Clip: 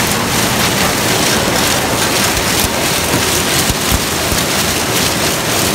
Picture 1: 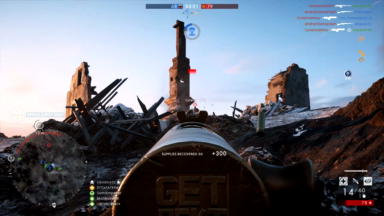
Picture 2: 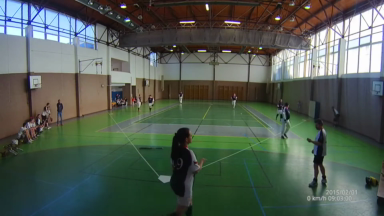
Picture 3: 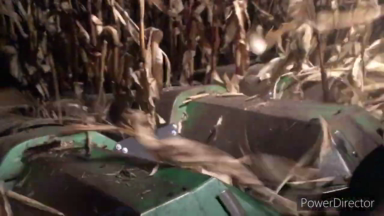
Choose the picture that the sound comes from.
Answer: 3